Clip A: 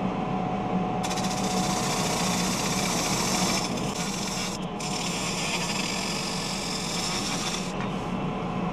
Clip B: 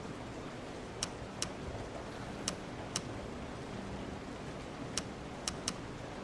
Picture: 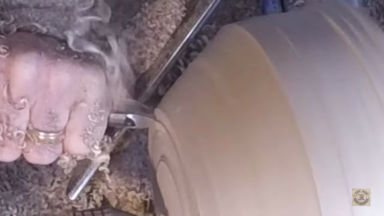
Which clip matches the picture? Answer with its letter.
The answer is A